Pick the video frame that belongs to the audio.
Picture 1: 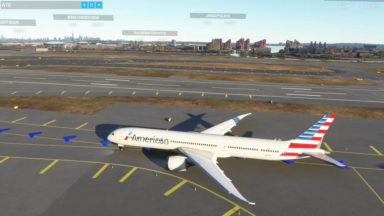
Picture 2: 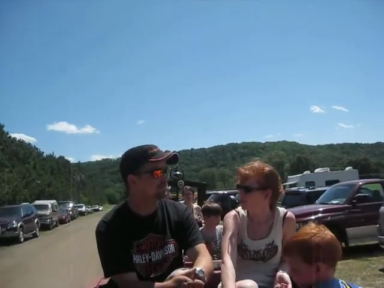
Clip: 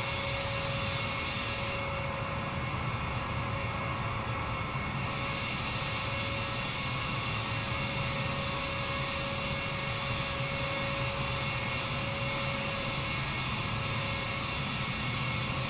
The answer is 1